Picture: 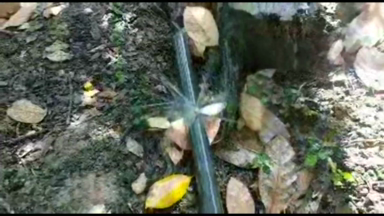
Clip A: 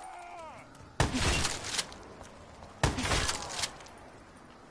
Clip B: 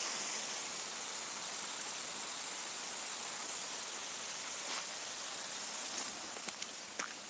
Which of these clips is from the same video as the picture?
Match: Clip B